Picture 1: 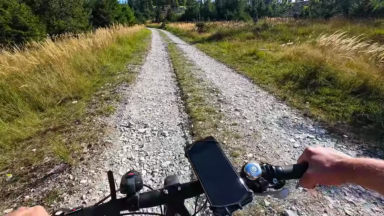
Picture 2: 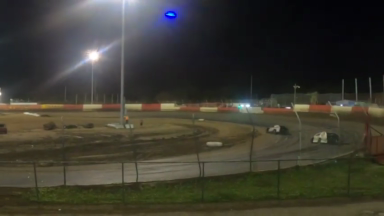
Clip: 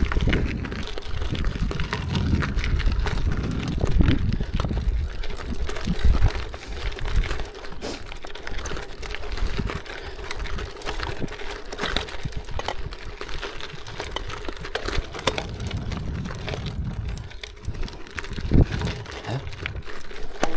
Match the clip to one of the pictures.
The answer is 1